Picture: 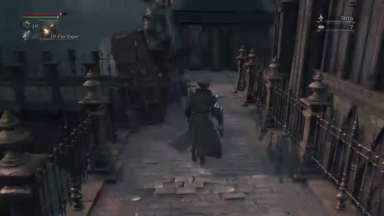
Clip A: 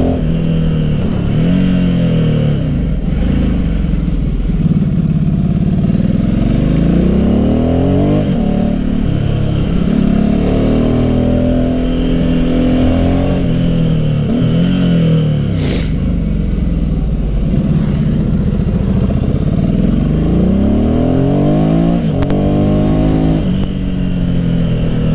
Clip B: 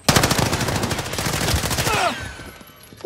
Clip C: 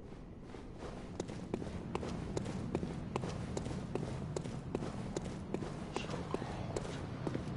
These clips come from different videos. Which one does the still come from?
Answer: C